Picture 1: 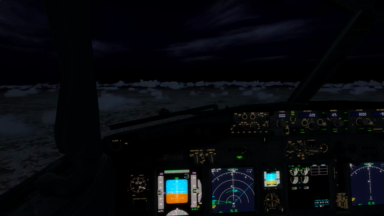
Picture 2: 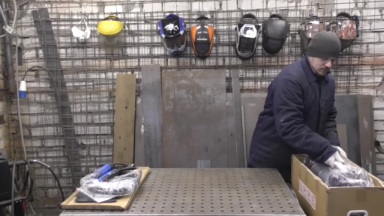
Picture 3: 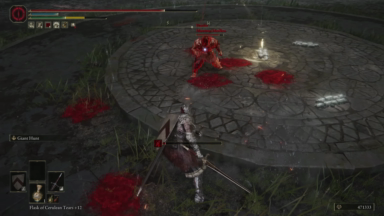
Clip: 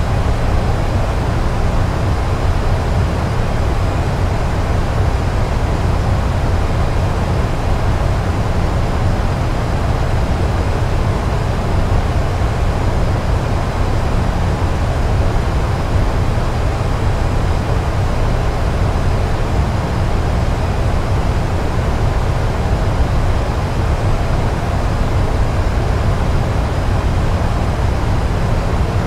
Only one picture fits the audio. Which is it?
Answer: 1